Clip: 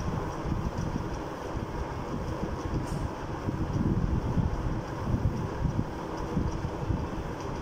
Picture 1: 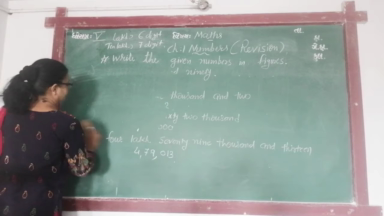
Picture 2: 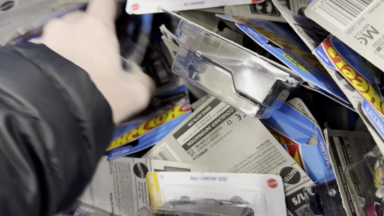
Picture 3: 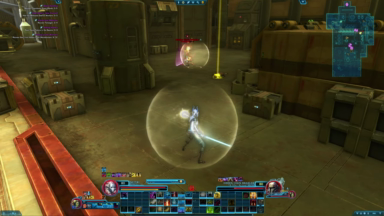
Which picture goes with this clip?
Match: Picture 1